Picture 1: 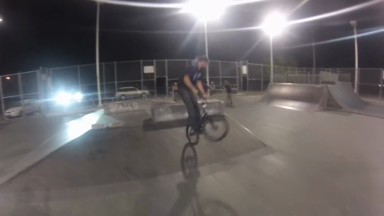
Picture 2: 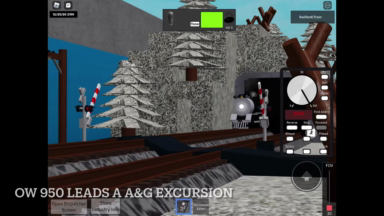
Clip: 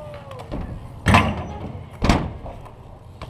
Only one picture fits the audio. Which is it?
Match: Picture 1